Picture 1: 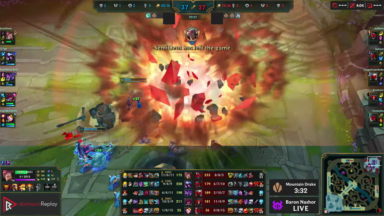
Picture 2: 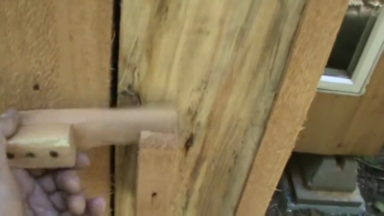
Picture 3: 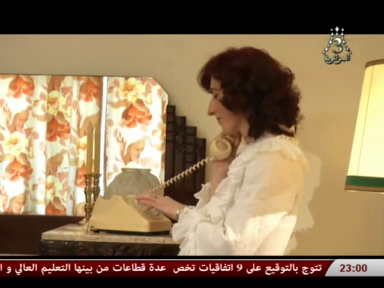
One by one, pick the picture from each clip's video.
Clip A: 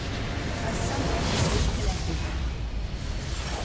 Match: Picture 1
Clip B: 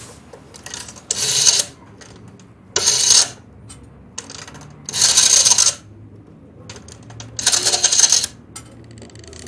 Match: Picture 3